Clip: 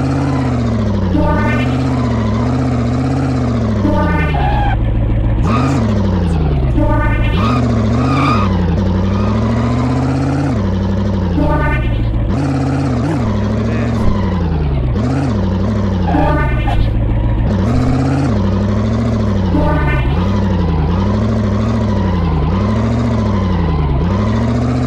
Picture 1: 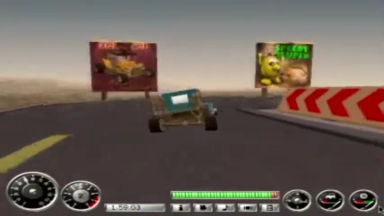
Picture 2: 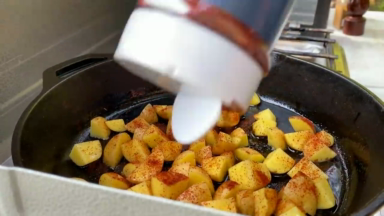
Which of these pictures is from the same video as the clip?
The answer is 1